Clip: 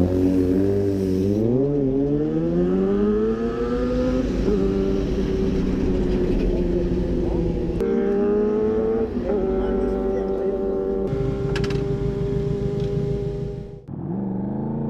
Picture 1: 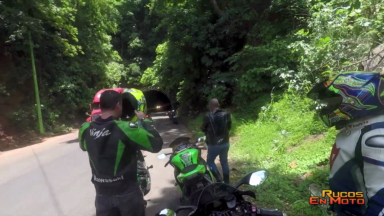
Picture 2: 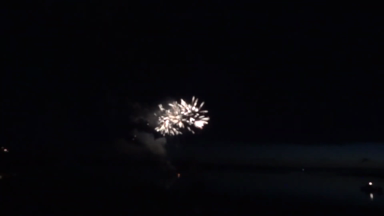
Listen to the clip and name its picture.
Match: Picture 1